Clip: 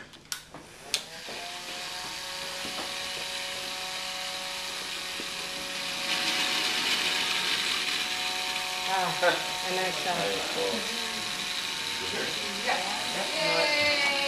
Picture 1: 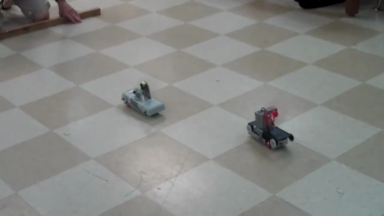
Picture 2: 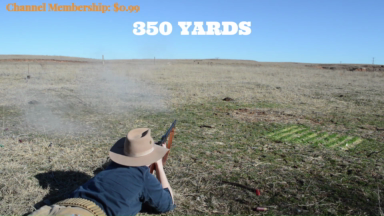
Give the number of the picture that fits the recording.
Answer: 1